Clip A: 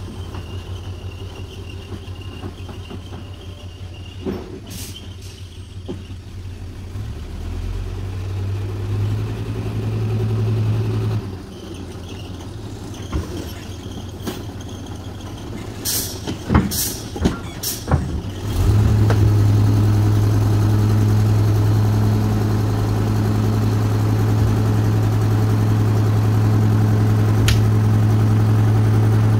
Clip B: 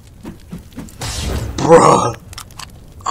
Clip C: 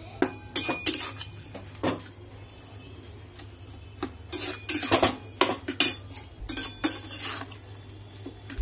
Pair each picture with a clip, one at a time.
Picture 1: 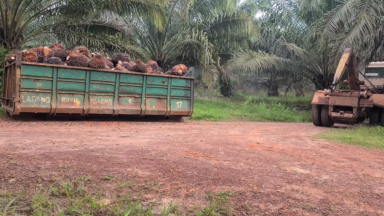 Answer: A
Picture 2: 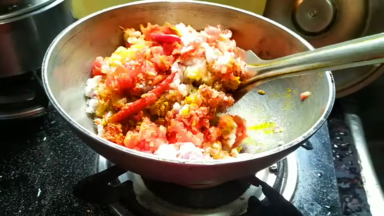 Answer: C